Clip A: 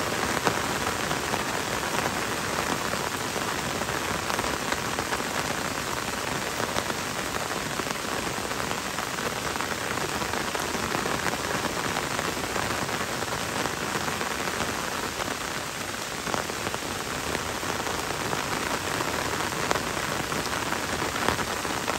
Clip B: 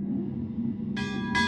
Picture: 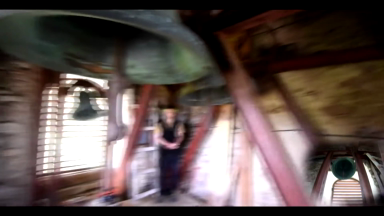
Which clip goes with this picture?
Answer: B